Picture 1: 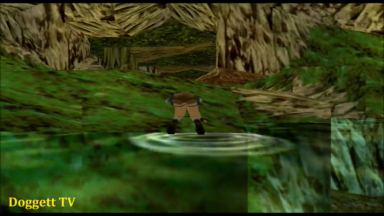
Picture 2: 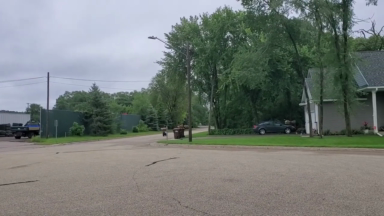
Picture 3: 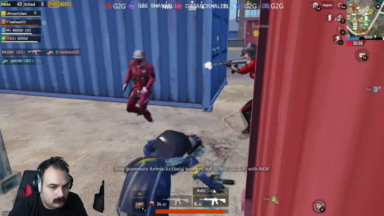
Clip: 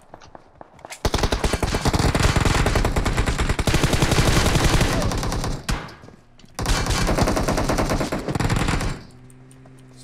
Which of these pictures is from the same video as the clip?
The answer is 3